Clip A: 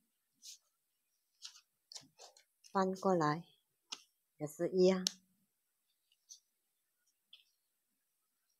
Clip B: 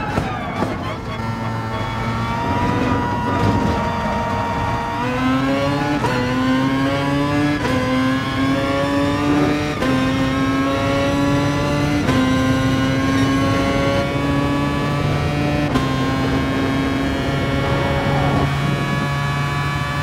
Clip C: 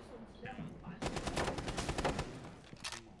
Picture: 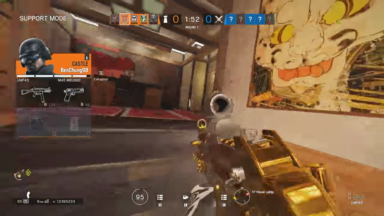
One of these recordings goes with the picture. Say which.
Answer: C